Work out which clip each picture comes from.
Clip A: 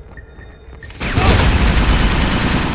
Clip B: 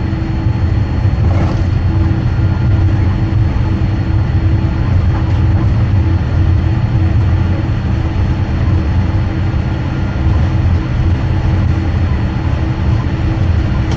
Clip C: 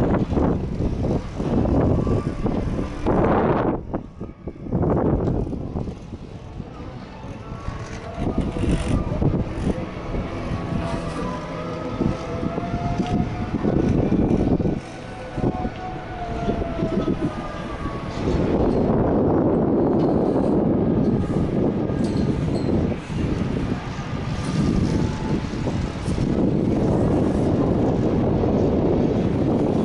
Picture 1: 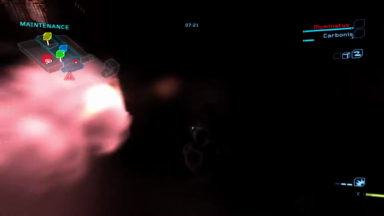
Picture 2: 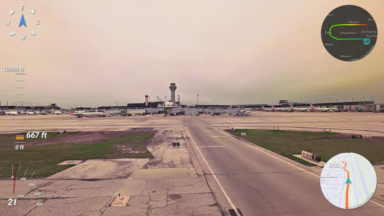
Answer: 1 A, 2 B